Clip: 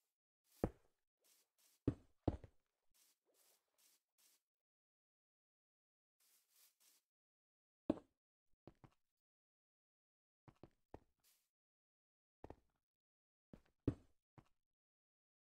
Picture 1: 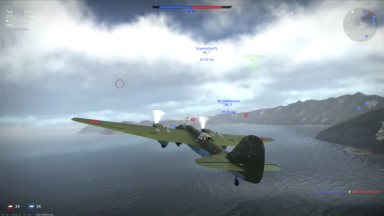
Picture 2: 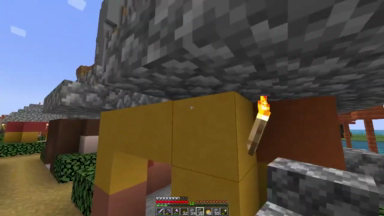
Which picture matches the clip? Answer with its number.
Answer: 2